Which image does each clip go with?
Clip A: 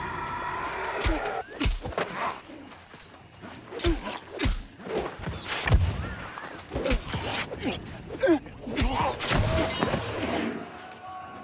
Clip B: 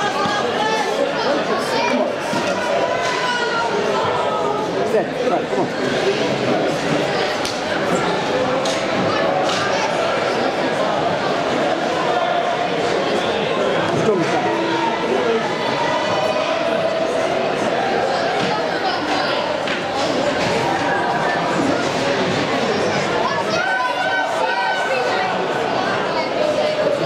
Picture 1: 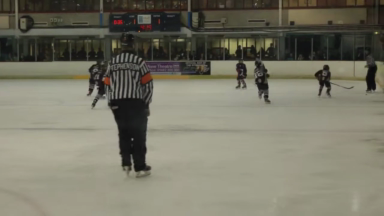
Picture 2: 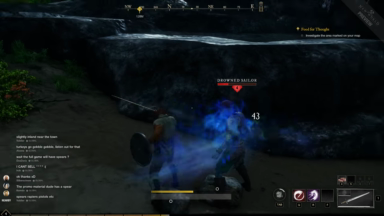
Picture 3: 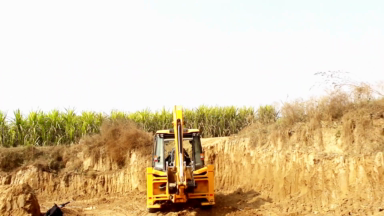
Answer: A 2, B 1